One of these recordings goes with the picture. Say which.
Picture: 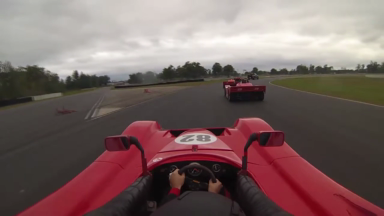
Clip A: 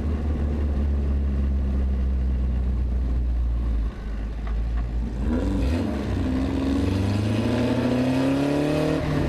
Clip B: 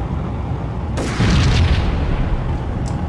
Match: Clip A